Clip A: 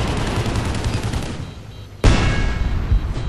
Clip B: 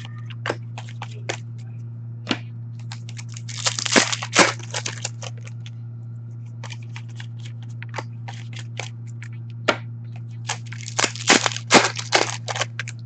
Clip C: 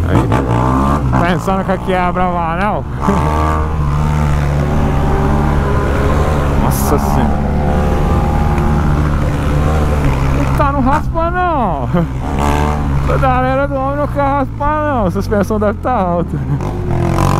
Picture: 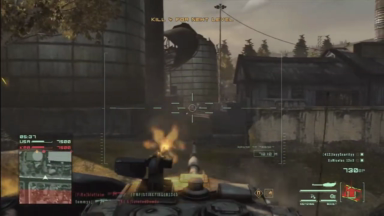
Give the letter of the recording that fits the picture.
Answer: A